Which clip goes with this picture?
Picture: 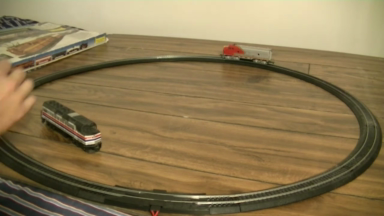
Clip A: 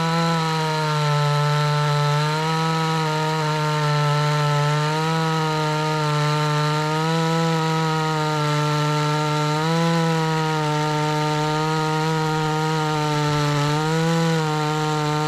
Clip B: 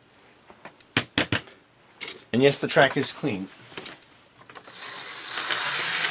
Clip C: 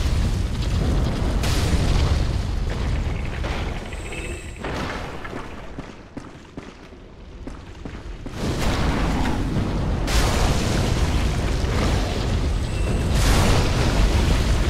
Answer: B